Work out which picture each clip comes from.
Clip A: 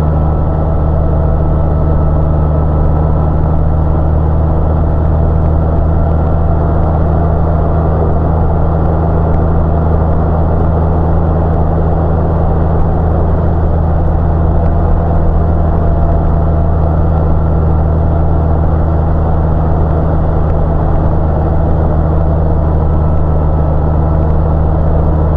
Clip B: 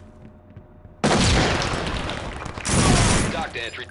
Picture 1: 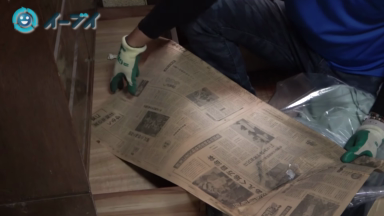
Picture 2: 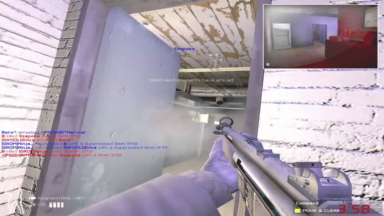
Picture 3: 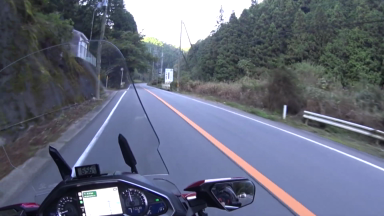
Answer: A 3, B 2